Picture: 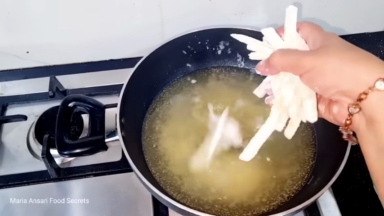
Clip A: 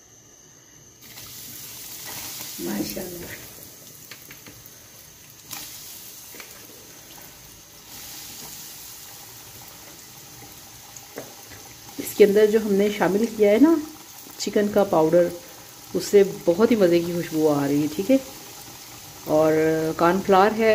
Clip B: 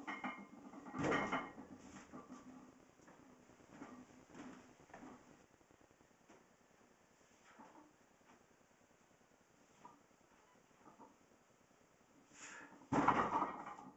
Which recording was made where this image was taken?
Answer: A